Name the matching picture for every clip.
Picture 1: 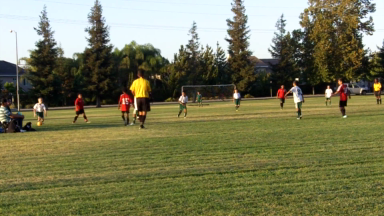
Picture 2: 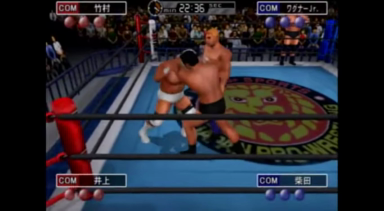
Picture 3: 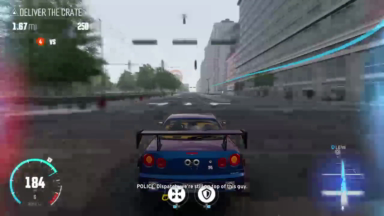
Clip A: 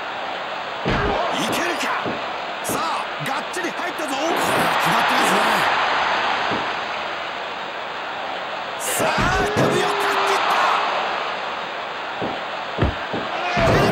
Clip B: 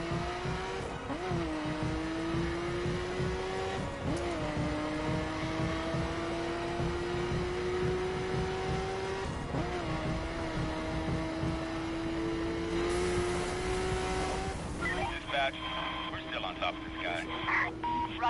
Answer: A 2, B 3